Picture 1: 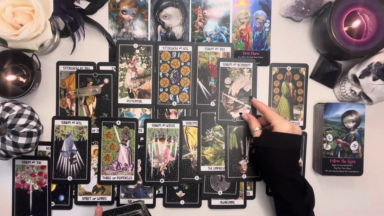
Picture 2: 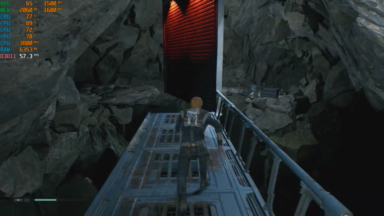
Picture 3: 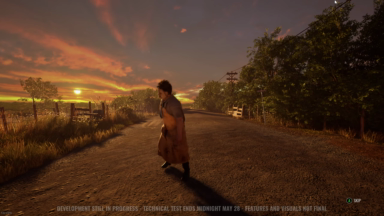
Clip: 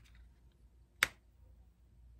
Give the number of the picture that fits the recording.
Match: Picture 1